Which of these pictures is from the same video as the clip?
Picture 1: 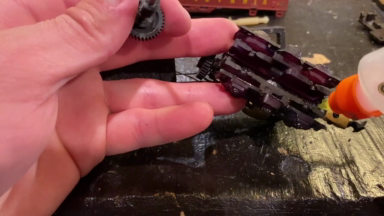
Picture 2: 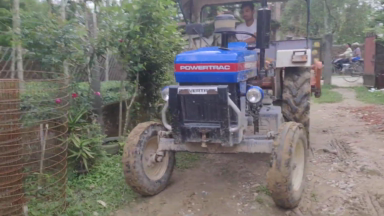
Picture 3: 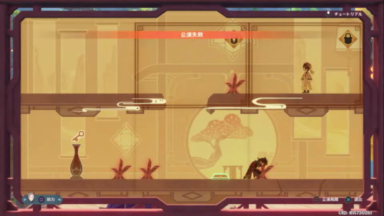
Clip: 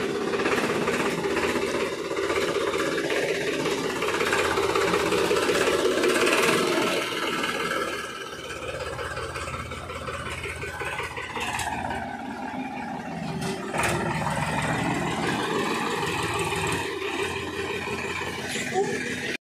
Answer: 2